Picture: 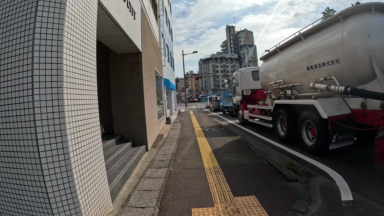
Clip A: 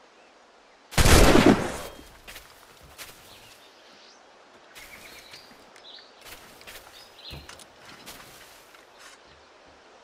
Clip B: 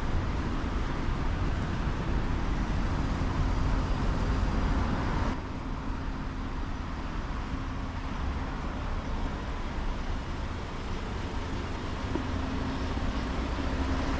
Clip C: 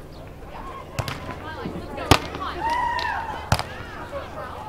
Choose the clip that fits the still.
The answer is B